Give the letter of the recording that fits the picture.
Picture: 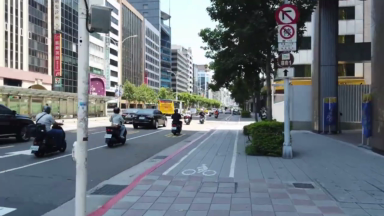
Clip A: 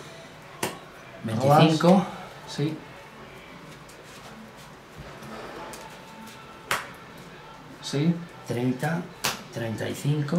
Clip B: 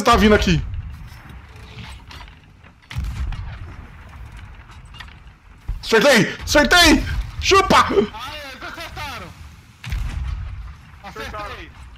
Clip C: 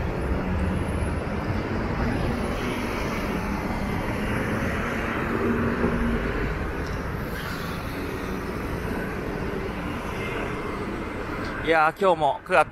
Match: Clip C